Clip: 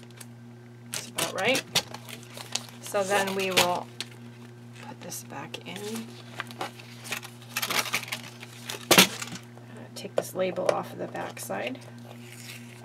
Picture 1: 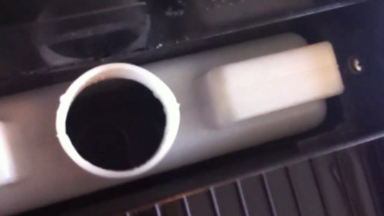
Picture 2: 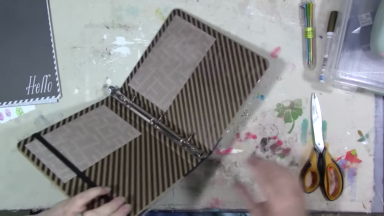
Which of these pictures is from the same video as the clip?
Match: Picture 2